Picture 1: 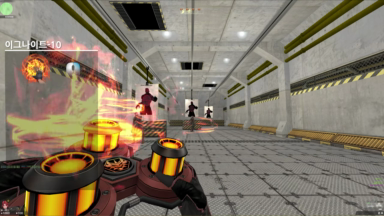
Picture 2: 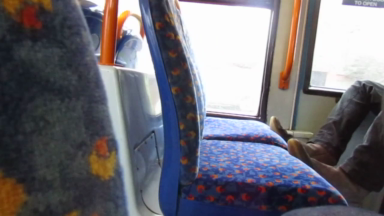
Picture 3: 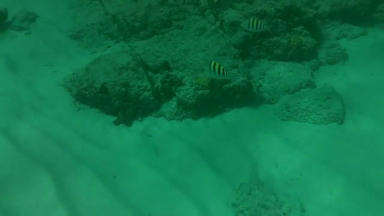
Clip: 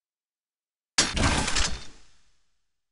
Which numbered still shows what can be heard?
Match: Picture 1